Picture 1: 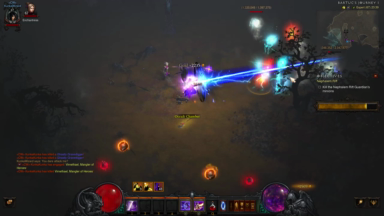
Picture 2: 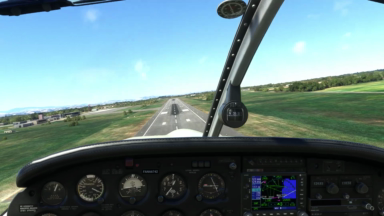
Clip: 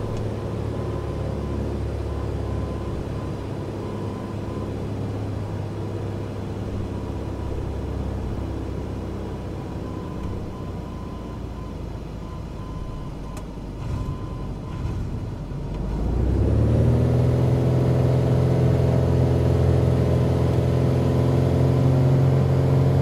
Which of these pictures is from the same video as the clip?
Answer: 2